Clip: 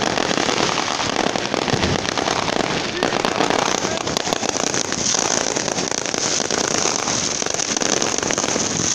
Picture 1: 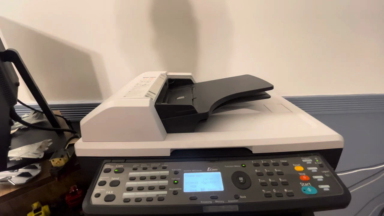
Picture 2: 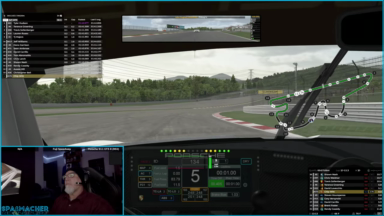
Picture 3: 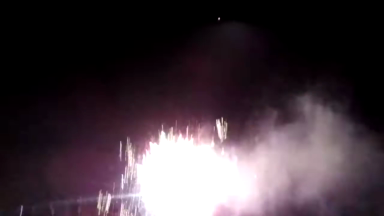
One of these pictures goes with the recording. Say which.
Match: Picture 3